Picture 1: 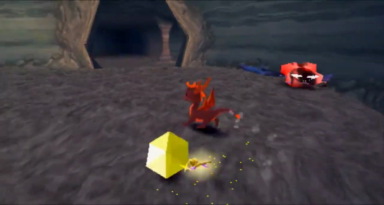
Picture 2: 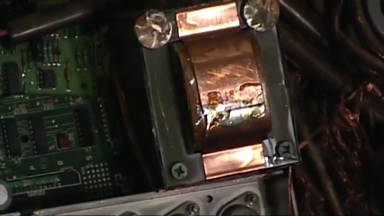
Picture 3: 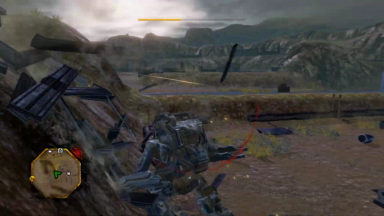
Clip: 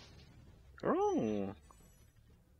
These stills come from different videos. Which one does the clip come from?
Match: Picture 1